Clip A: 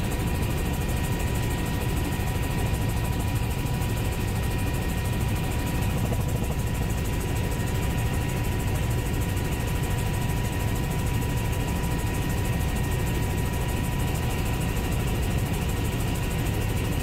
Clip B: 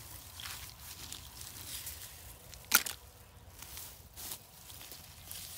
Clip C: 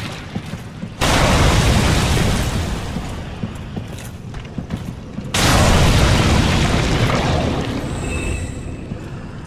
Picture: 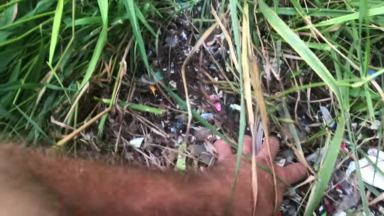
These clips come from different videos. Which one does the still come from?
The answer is B